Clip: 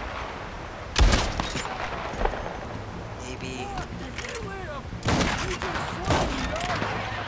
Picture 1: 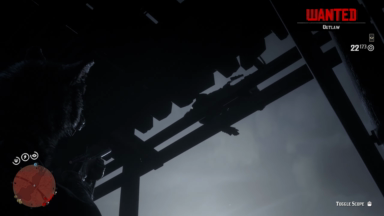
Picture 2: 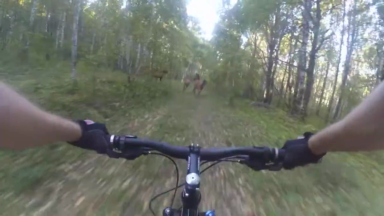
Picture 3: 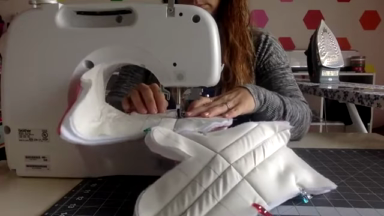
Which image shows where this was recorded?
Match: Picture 1